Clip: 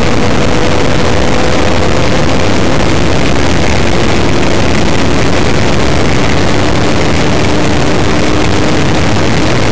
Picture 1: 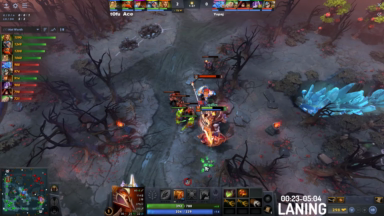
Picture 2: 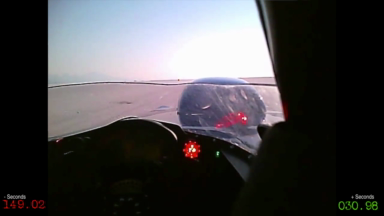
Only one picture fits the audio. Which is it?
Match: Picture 2